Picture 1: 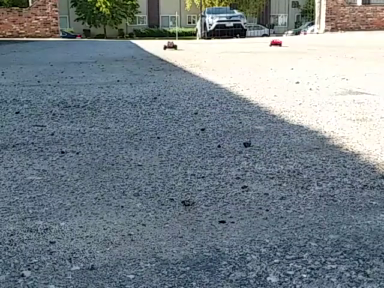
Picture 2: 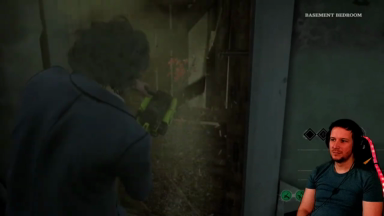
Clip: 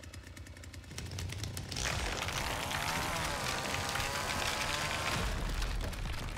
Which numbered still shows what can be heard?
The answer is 2